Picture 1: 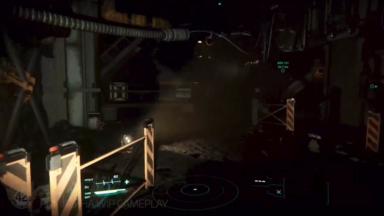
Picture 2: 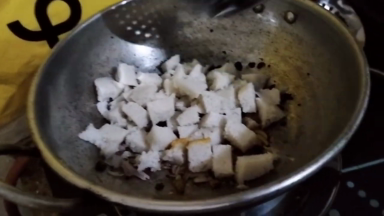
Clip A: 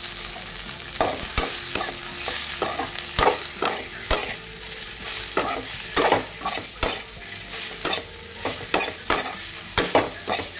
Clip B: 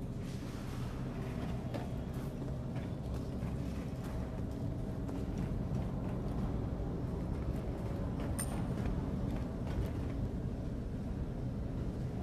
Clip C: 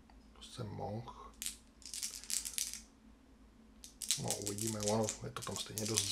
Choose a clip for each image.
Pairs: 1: B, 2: A